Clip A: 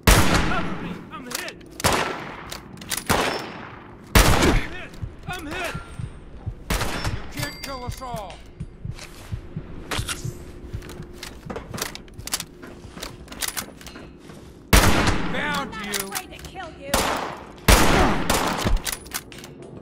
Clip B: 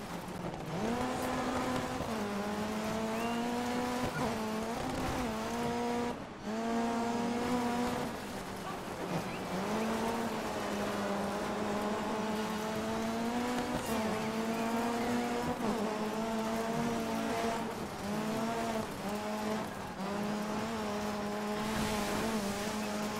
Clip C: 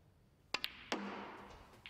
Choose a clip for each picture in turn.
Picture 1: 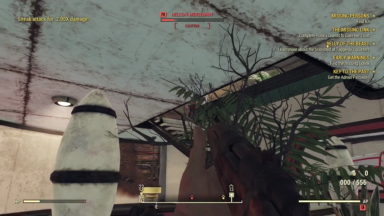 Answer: A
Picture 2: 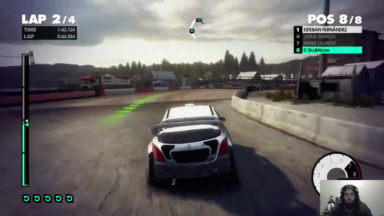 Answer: B